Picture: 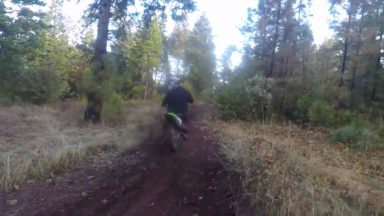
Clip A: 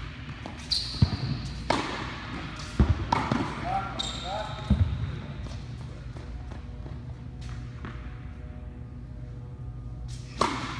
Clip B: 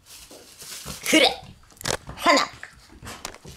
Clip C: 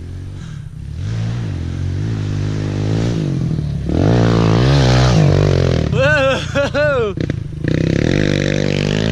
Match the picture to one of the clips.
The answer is C